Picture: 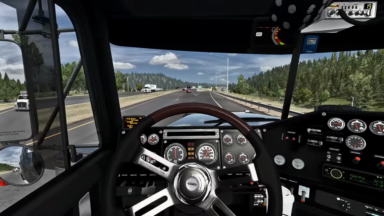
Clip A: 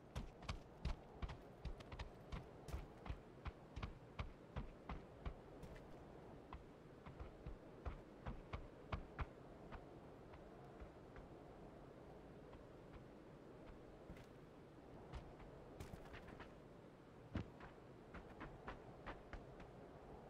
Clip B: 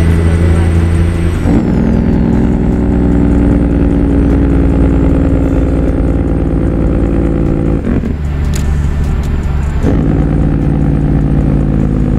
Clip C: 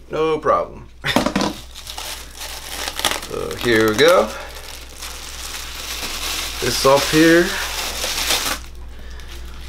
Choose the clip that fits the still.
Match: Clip B